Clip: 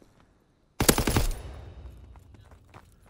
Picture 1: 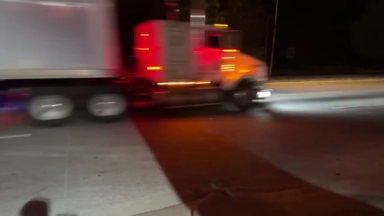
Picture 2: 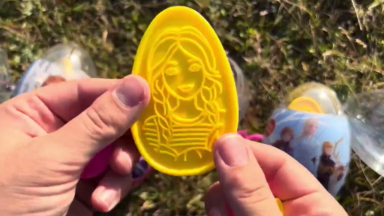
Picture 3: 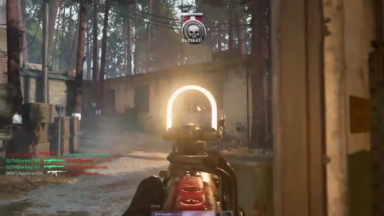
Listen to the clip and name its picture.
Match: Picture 3